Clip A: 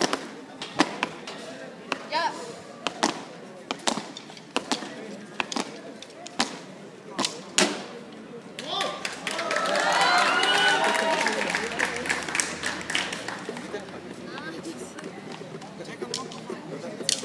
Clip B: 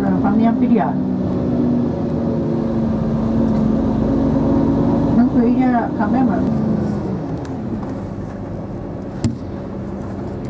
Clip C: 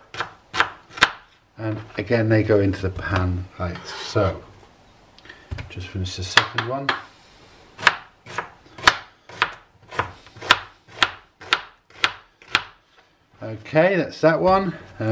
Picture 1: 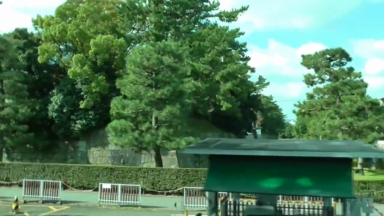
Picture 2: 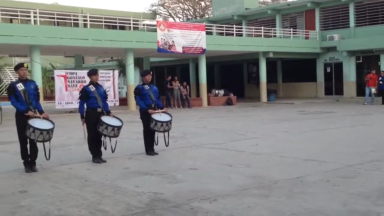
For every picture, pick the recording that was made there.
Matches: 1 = B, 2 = A